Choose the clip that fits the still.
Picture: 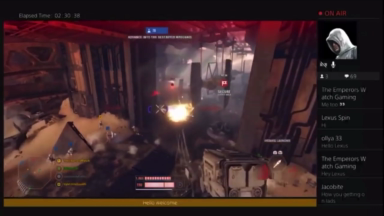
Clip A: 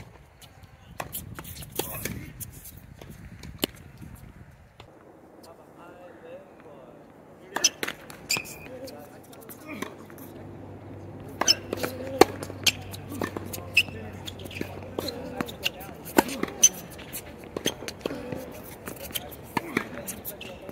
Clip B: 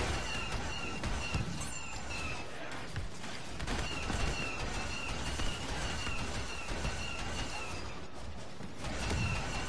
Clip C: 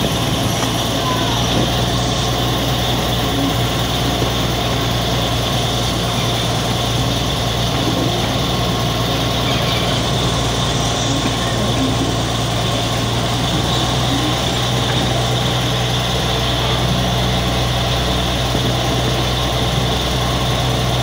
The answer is B